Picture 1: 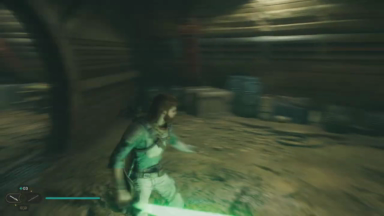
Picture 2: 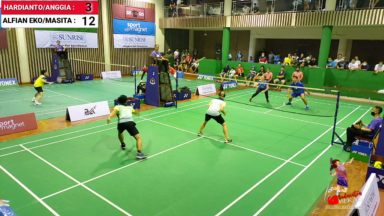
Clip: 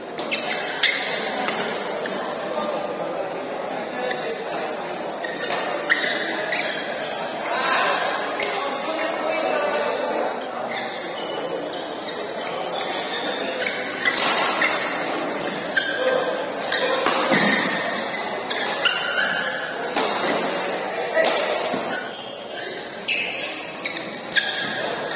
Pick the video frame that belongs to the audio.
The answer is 2